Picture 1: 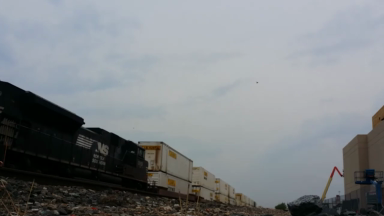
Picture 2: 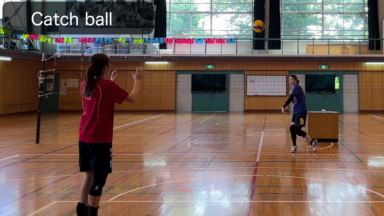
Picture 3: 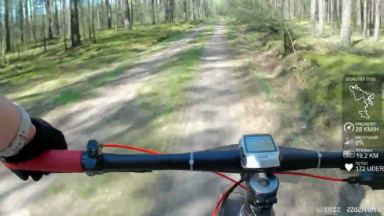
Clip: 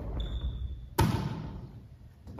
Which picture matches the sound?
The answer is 2